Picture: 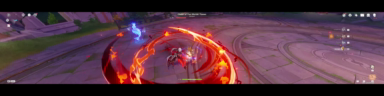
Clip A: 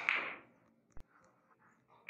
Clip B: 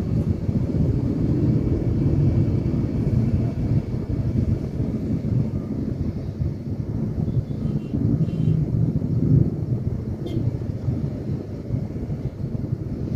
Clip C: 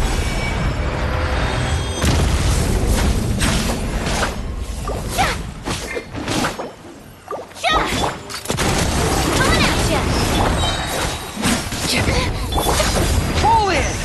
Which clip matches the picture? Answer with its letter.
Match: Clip C